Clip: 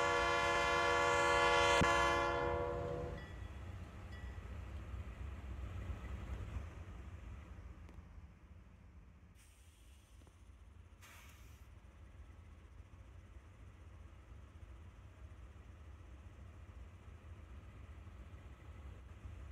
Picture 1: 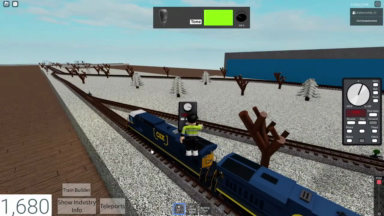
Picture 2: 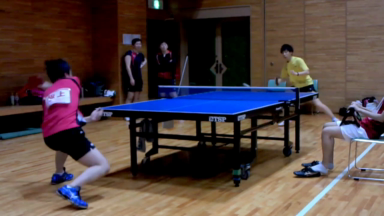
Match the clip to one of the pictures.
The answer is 1